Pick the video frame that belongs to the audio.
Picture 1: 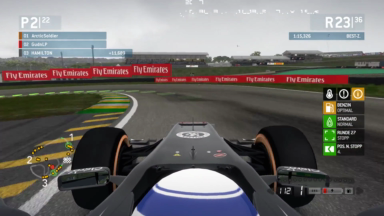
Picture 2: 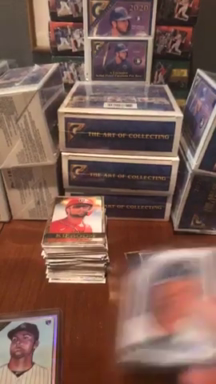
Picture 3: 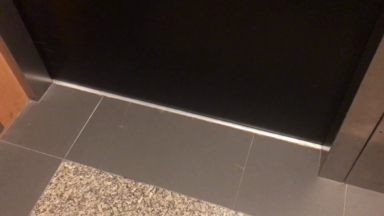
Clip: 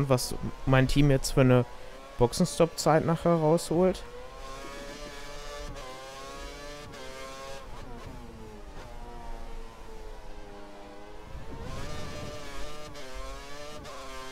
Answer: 1